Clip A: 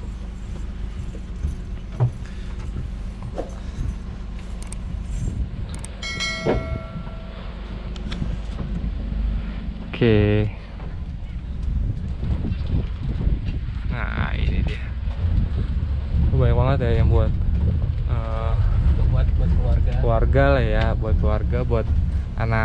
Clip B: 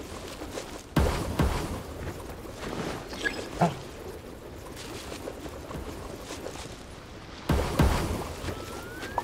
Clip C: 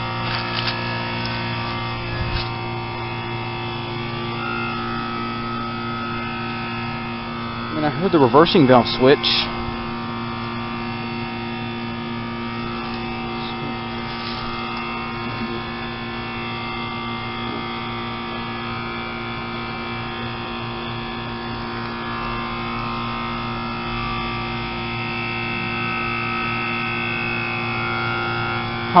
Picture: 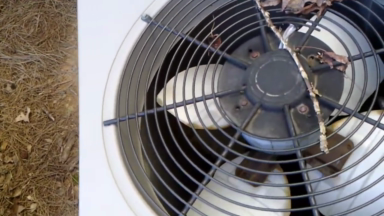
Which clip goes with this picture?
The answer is C